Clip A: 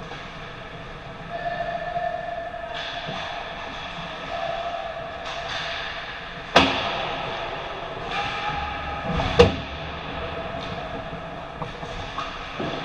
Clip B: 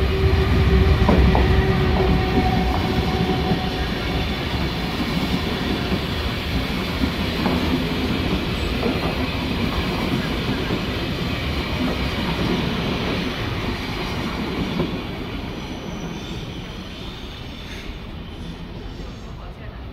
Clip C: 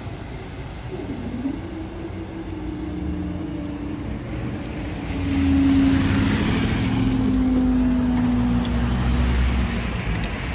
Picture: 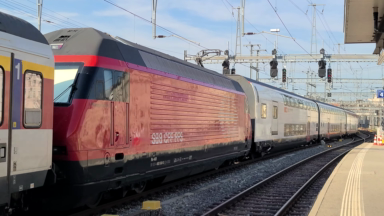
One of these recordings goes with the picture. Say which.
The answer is B